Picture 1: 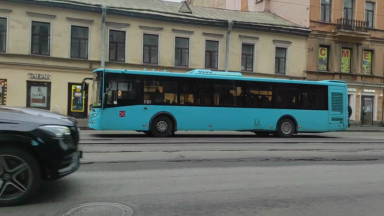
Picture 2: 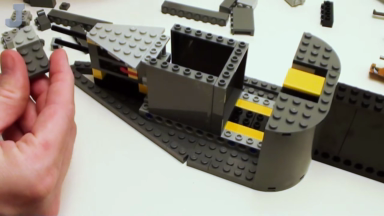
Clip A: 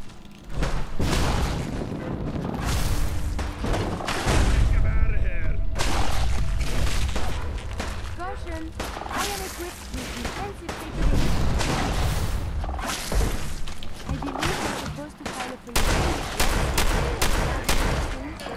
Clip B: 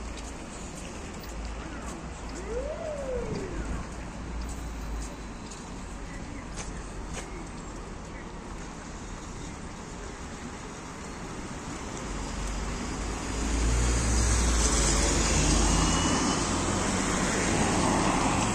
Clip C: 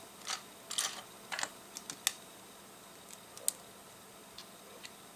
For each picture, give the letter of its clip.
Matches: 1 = B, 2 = C